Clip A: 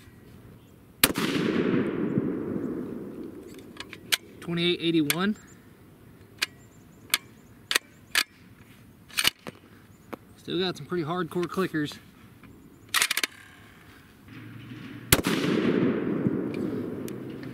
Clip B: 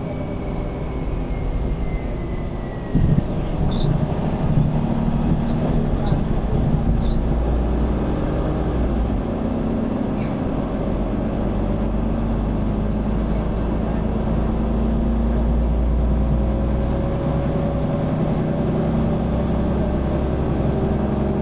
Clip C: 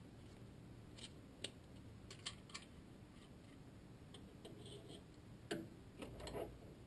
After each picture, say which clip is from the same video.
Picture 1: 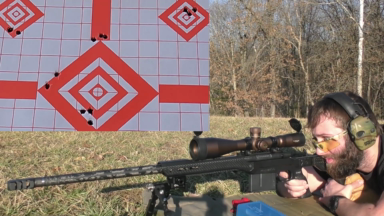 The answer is A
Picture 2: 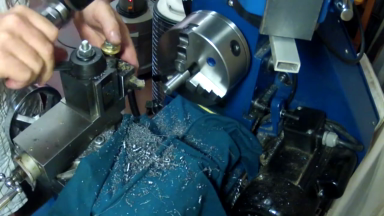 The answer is C